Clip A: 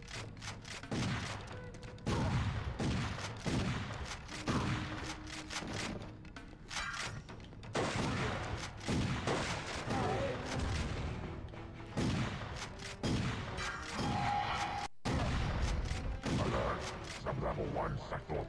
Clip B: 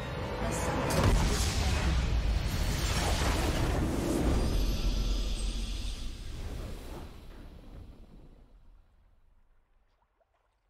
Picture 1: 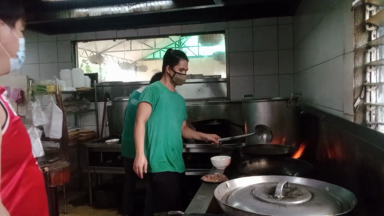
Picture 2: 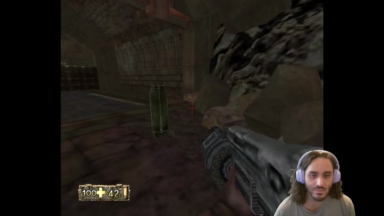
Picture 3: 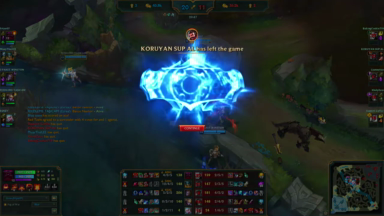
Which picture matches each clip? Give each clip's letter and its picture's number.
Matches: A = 2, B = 3